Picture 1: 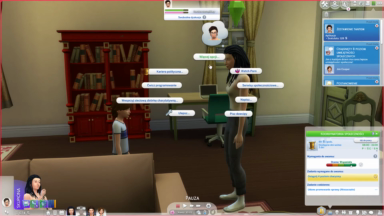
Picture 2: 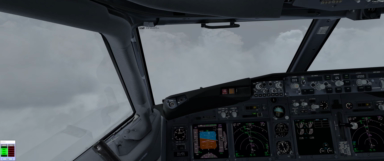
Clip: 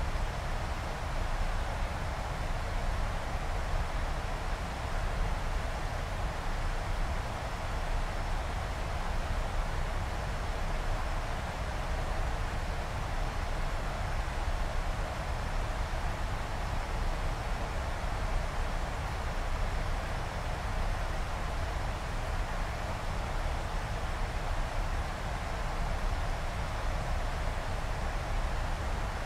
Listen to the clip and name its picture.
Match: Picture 2